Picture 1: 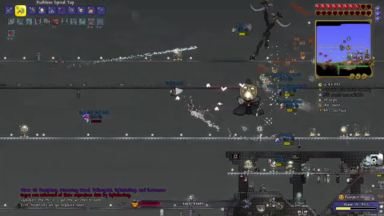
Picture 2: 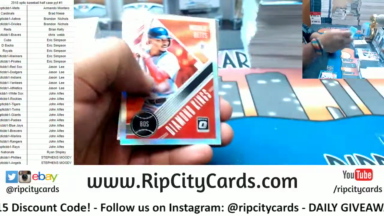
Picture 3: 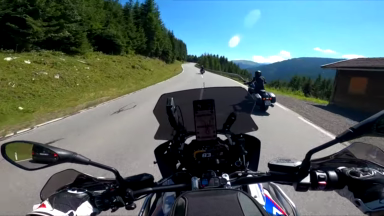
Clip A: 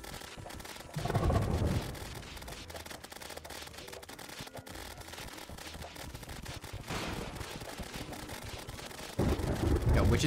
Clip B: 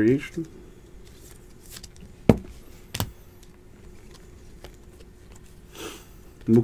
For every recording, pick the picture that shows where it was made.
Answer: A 1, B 2